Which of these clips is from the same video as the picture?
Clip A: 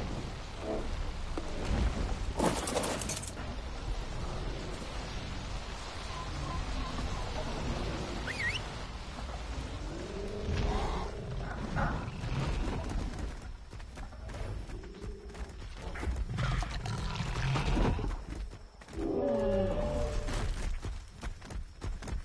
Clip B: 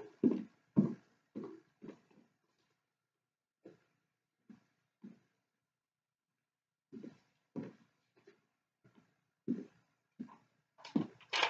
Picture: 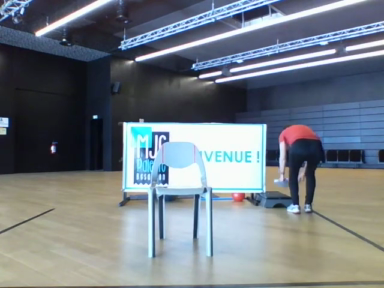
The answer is B